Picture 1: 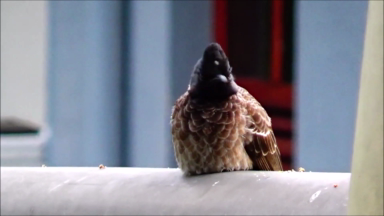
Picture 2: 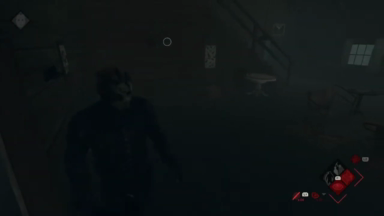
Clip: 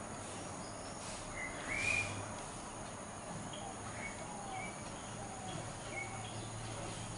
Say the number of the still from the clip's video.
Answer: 1